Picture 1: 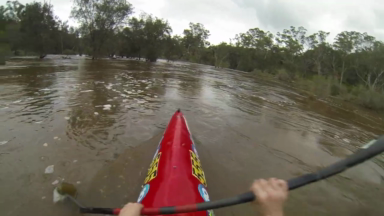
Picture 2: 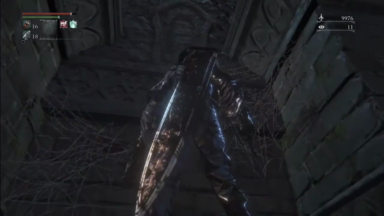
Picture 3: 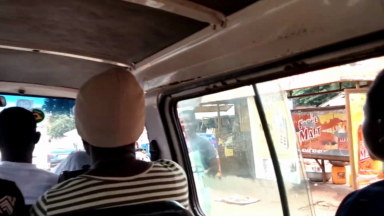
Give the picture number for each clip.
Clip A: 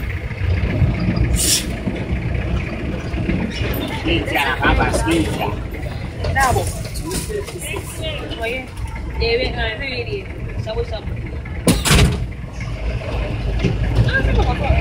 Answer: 3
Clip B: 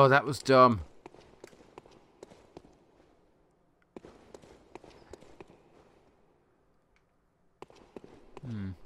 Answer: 2